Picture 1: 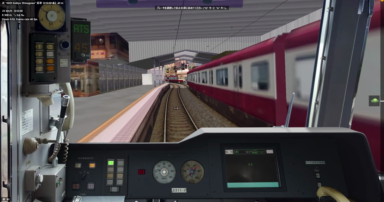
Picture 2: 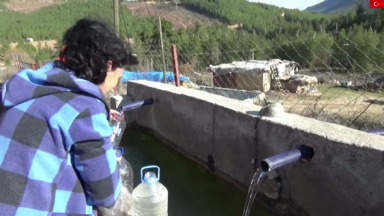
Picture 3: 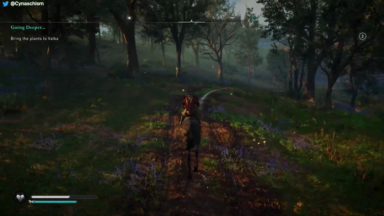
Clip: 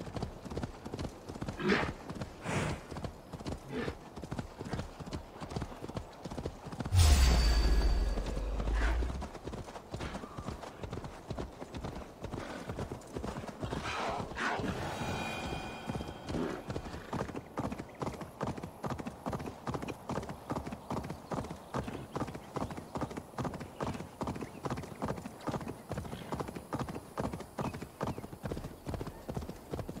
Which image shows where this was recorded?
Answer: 3